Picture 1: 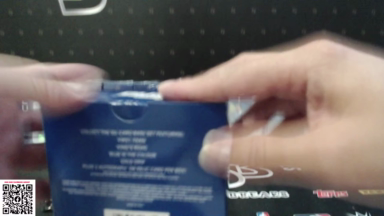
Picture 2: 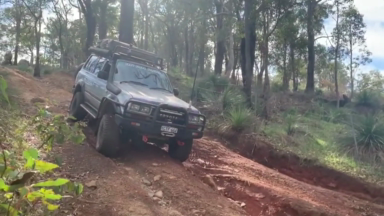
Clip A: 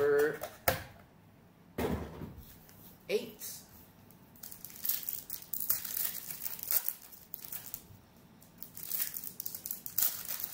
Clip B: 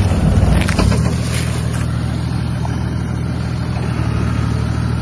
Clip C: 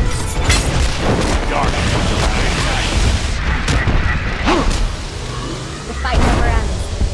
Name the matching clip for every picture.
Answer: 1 A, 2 B